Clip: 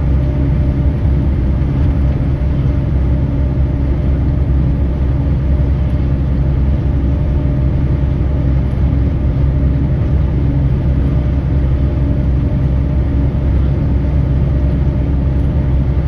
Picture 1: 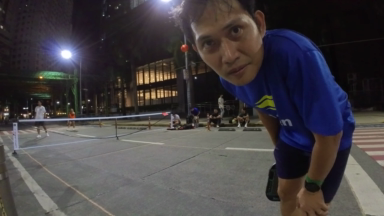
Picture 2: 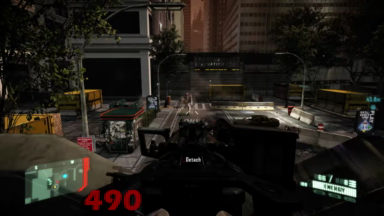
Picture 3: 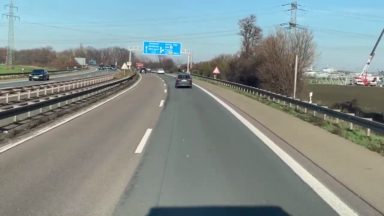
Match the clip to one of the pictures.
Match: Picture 3